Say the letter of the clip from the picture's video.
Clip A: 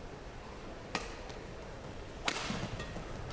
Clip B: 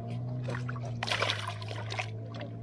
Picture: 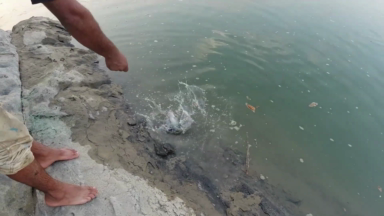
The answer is B